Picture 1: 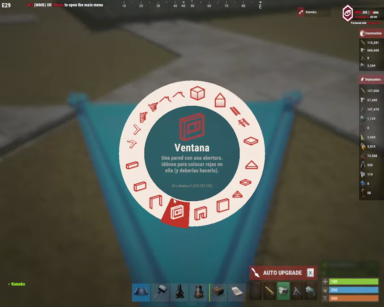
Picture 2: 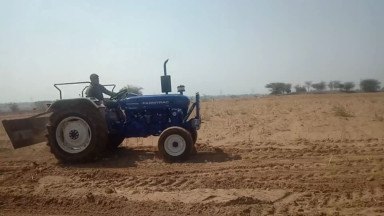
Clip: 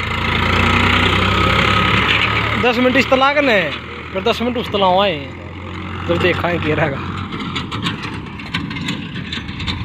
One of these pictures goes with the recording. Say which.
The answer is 2